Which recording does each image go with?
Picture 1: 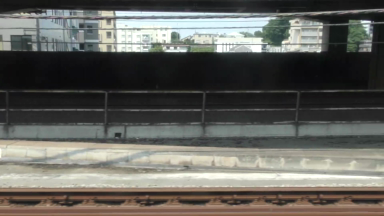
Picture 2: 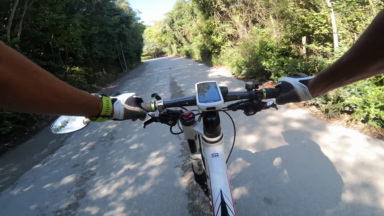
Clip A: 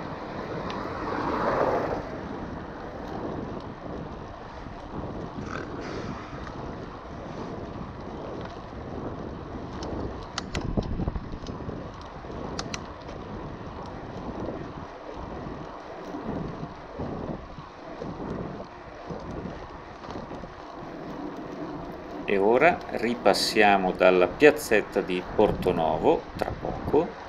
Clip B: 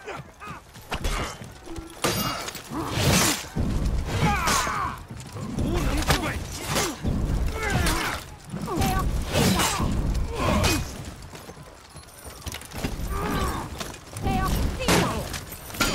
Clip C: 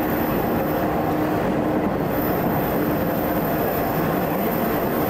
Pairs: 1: C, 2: A